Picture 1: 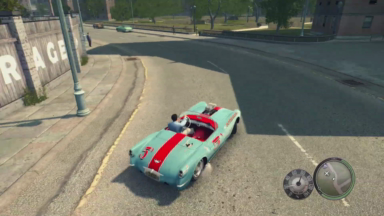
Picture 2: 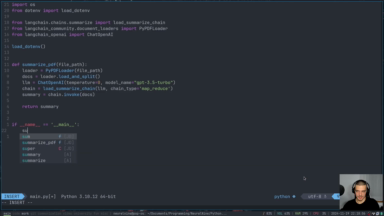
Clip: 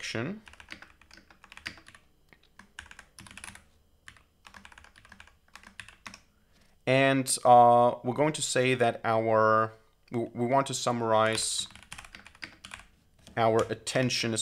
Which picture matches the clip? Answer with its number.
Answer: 2